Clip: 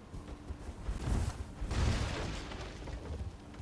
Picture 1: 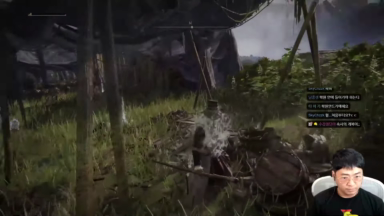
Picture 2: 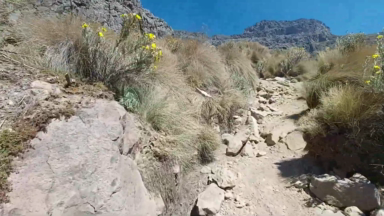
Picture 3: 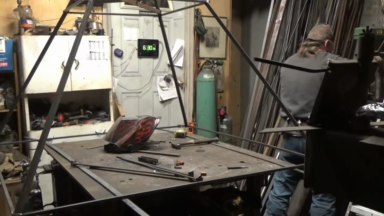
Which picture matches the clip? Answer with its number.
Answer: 1